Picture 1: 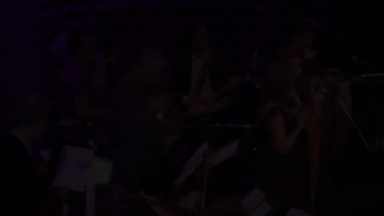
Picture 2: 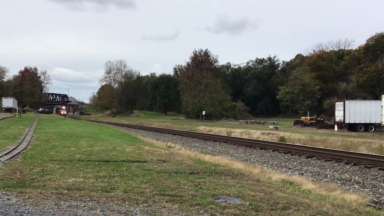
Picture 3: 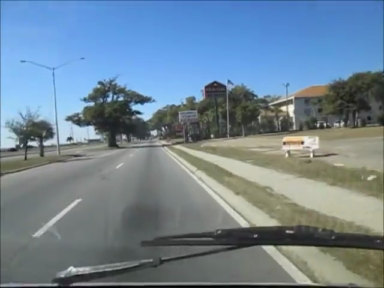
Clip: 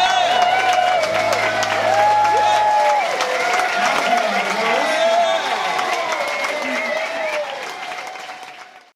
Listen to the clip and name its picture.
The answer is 1